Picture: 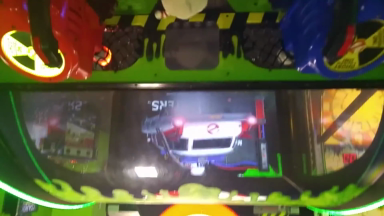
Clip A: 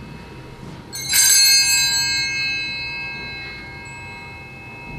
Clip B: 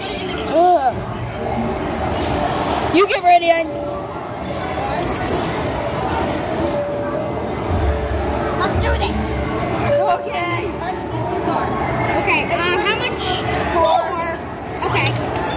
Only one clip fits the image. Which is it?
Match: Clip B